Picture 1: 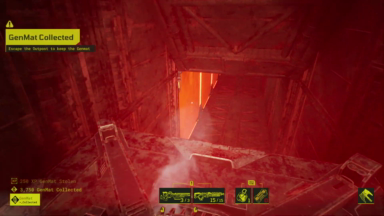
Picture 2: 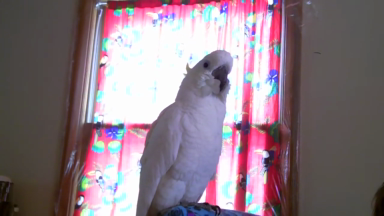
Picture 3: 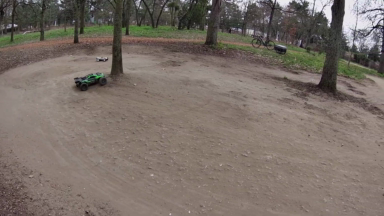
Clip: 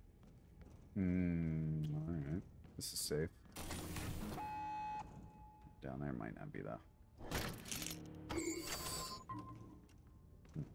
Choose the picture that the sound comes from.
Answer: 1